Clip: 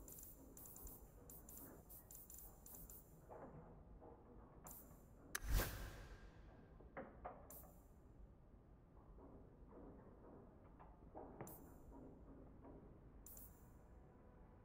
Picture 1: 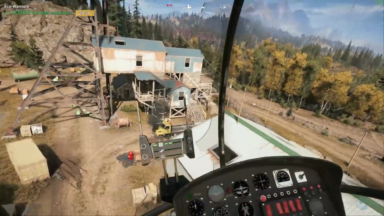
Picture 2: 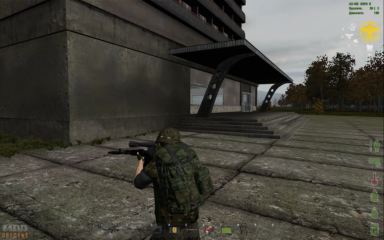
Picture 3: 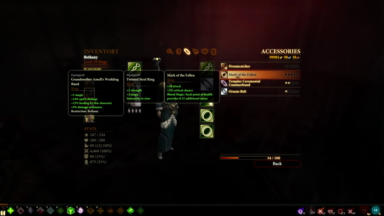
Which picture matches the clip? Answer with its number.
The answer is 3